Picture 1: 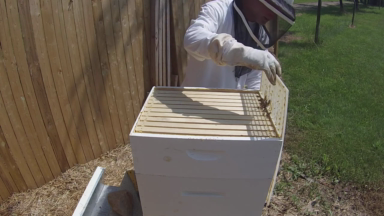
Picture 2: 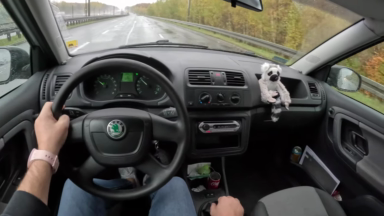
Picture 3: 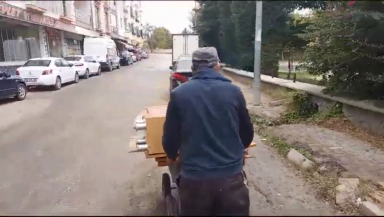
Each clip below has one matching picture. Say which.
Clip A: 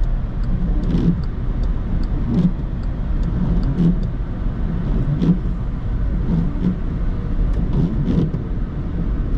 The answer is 2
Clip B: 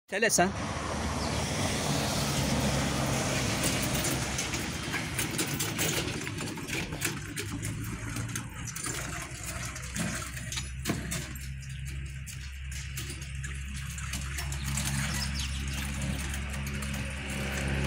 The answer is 3